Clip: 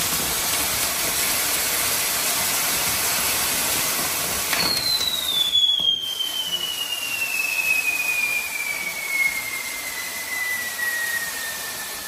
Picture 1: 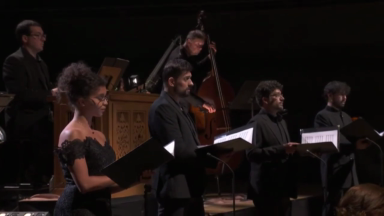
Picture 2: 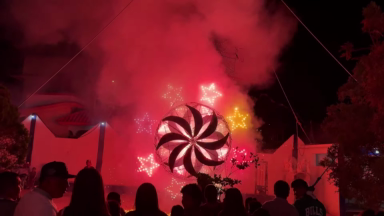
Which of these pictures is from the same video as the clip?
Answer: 2